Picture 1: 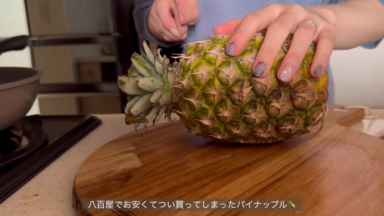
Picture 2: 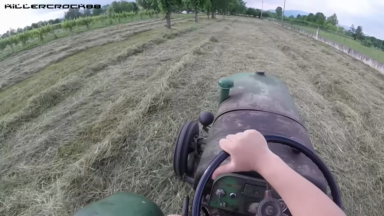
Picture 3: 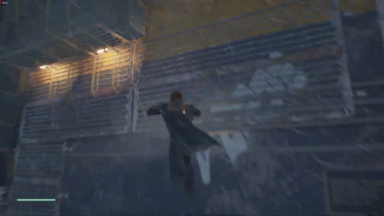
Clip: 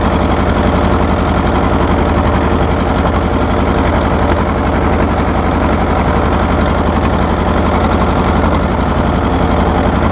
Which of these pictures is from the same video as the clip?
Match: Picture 2